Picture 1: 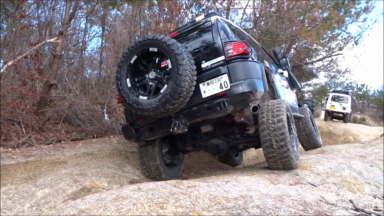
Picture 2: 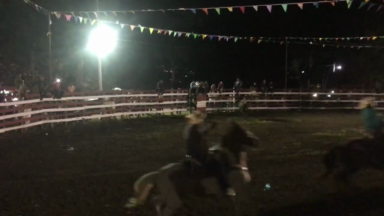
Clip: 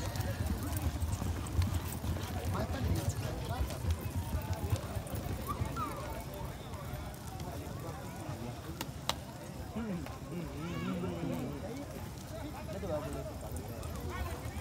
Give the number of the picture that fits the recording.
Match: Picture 2